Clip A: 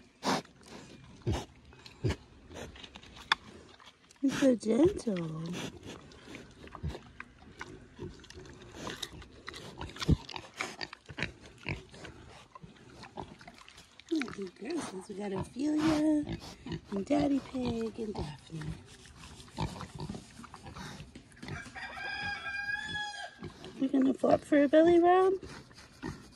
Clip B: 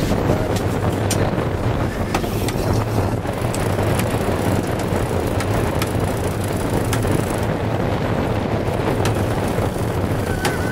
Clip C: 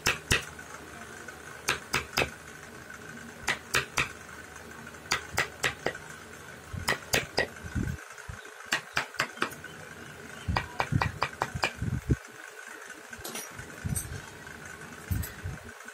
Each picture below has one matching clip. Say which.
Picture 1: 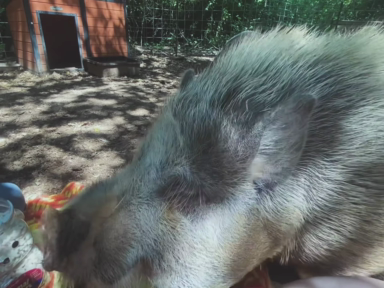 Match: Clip A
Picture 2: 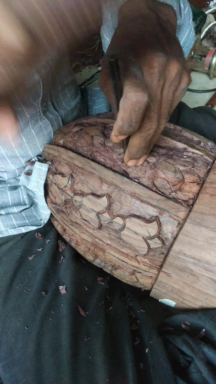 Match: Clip C